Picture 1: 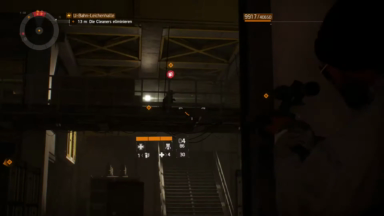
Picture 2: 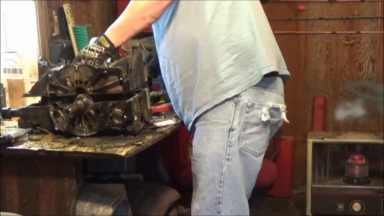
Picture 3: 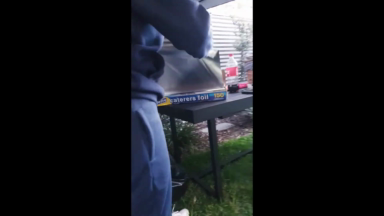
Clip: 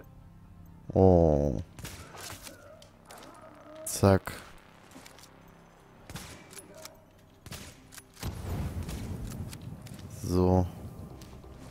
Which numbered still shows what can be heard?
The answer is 1